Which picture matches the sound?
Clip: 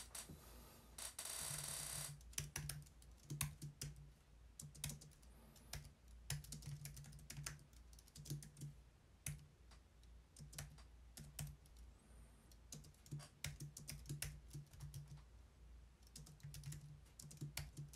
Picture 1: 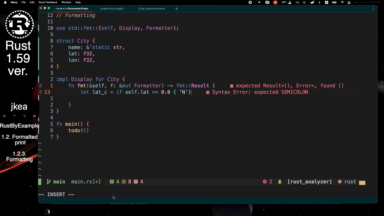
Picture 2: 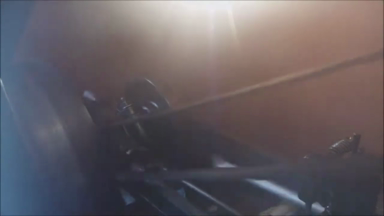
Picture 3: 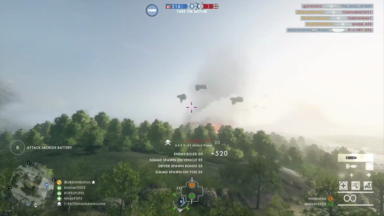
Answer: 1